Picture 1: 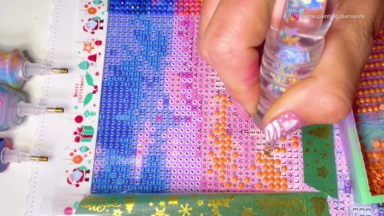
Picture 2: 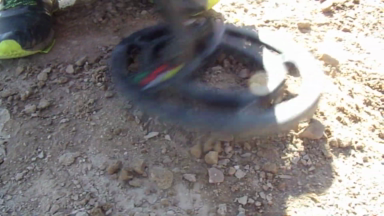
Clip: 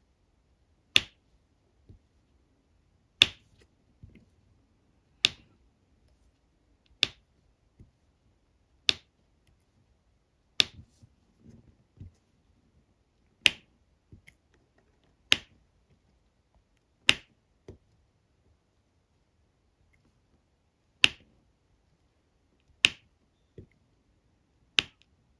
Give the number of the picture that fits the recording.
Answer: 1